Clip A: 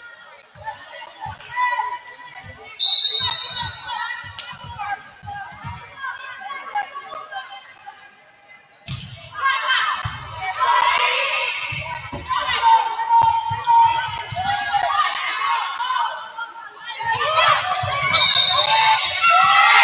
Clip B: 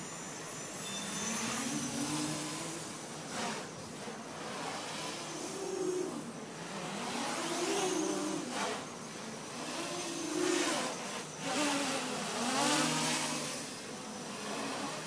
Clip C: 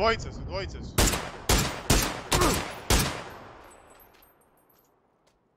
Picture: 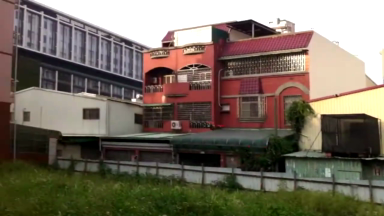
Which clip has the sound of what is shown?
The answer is B